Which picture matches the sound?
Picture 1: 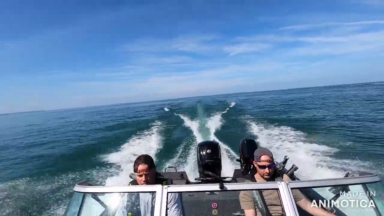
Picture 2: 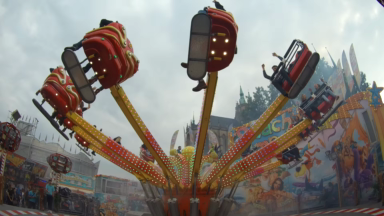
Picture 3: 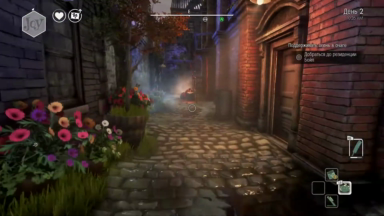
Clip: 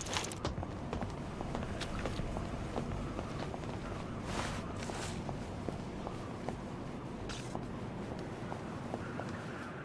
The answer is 3